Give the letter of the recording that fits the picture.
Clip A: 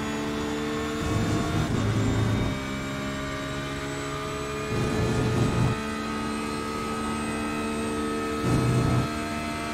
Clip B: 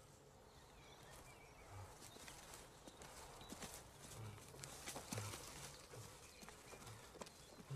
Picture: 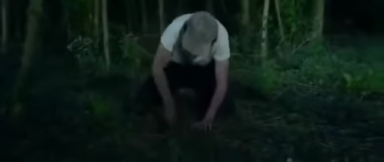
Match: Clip B